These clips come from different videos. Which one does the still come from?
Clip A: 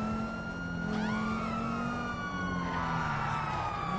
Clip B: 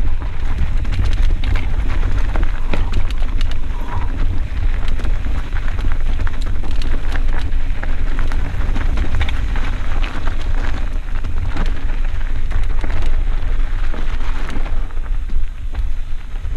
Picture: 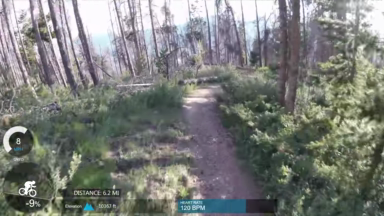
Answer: B